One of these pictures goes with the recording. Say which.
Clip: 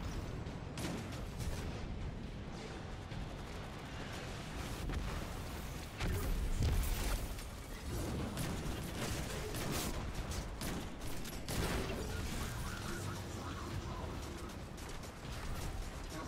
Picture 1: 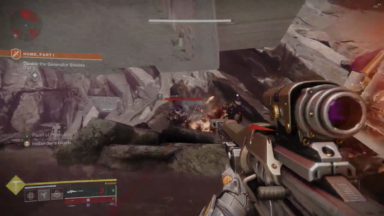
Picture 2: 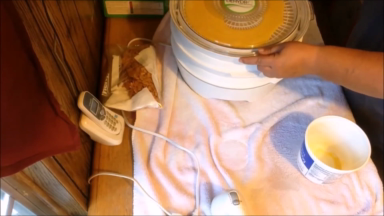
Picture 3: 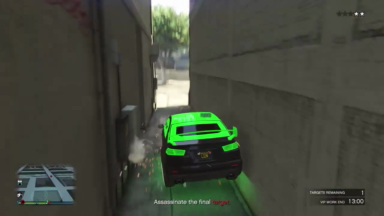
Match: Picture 1